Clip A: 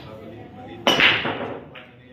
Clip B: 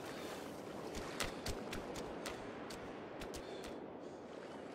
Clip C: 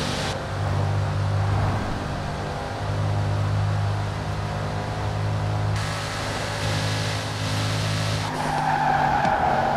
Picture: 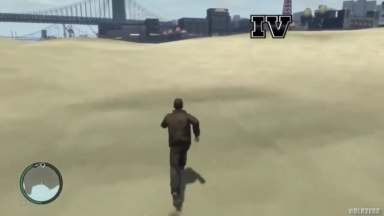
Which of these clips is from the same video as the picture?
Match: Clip B